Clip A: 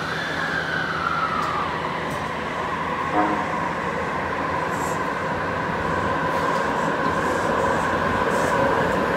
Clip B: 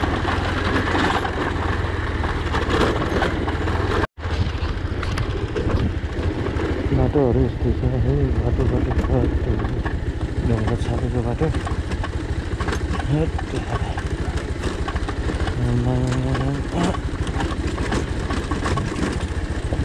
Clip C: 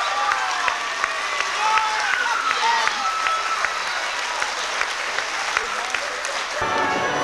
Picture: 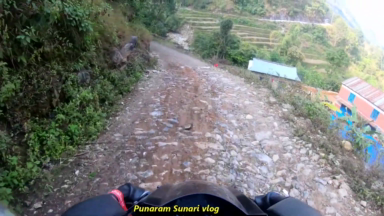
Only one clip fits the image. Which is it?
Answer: B